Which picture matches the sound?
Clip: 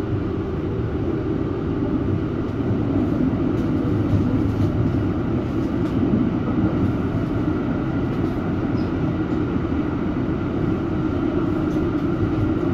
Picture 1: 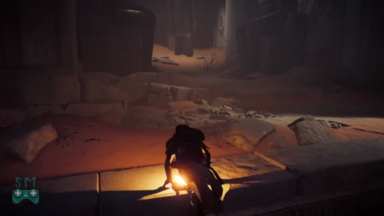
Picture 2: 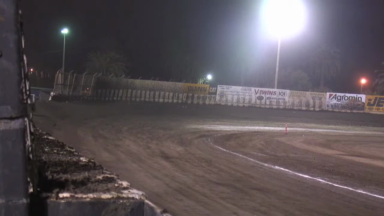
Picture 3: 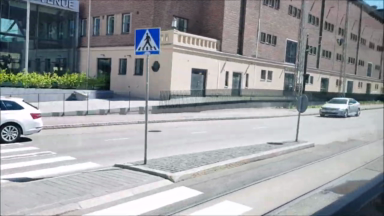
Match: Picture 3